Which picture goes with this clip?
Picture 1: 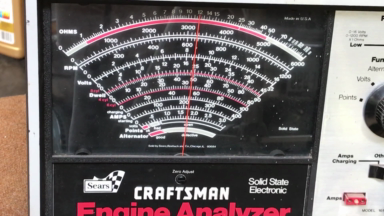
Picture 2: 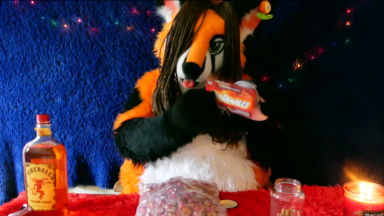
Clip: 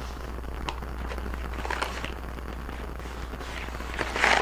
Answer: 2